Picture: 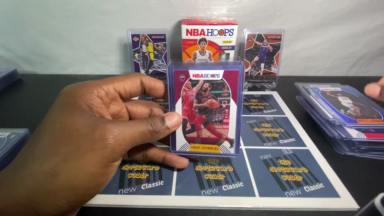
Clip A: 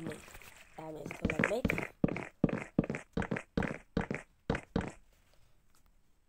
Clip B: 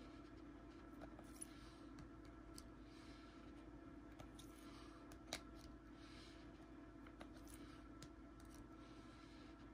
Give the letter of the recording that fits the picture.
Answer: B